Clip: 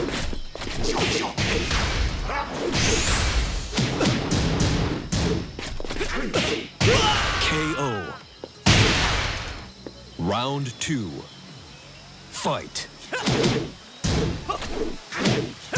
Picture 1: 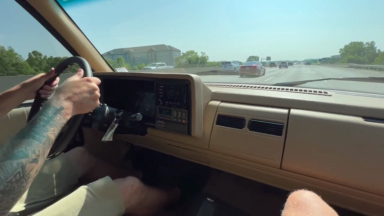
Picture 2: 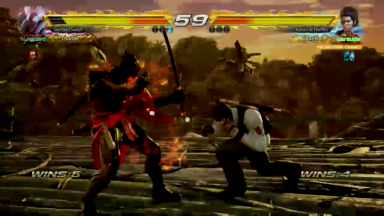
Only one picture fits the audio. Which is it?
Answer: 2